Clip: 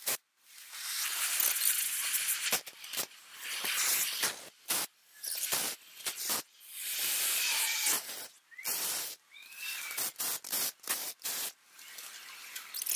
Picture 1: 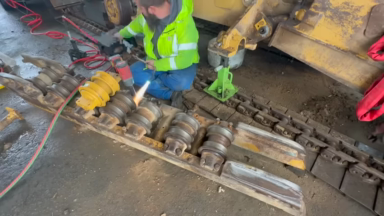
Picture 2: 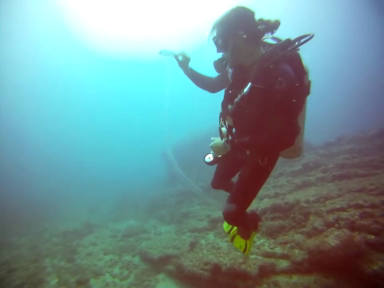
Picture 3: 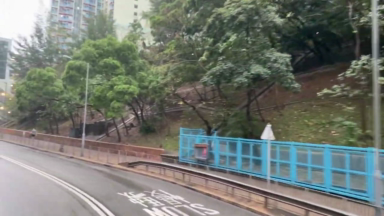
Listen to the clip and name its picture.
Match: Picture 1